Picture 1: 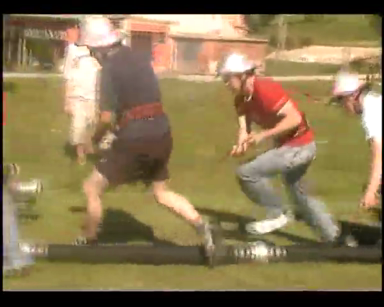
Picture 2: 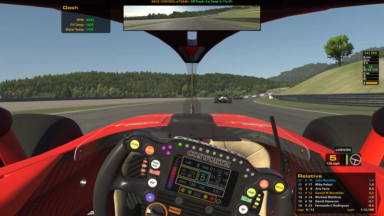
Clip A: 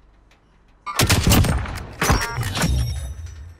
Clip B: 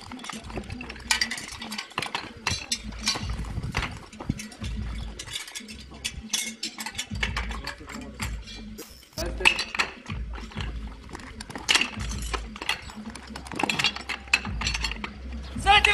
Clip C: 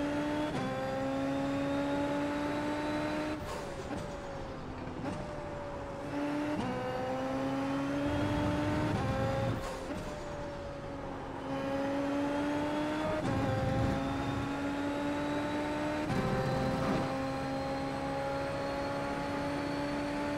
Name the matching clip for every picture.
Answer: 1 B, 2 C